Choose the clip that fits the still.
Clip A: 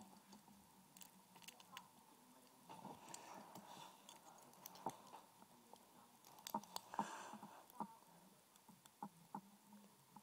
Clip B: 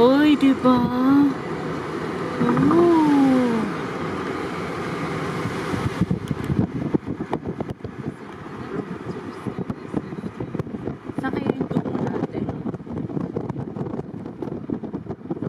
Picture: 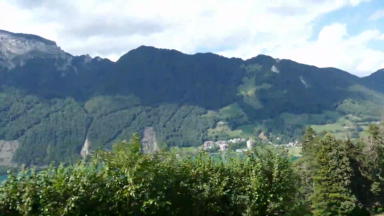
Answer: B